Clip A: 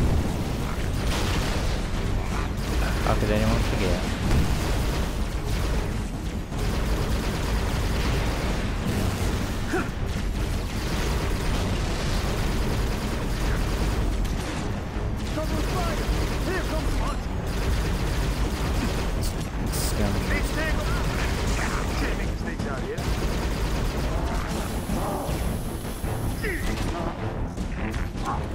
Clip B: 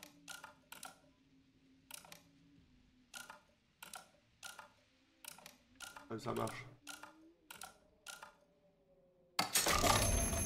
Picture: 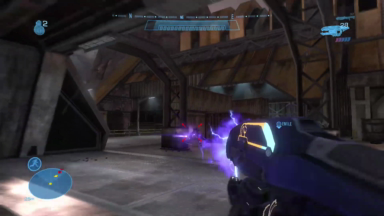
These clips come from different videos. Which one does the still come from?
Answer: A